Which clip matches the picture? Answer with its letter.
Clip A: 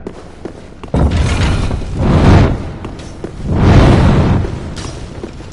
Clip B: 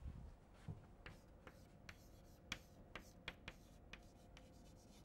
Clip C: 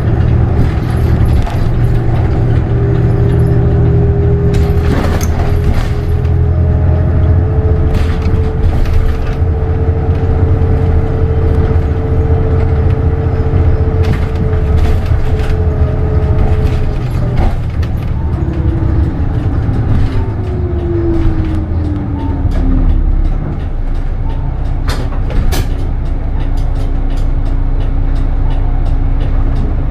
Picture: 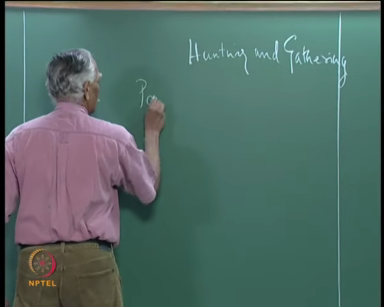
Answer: B